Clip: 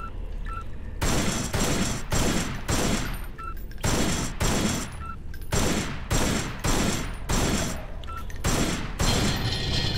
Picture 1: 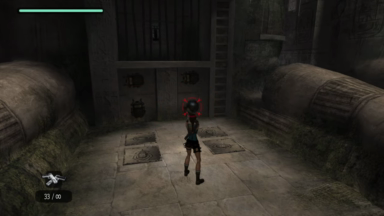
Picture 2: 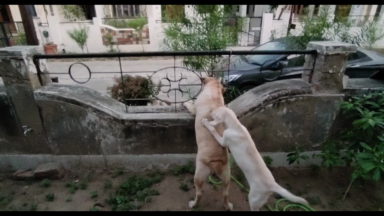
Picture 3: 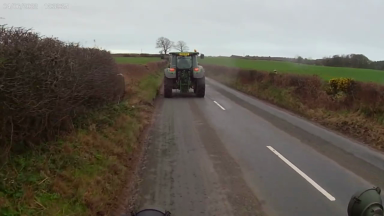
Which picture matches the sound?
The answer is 1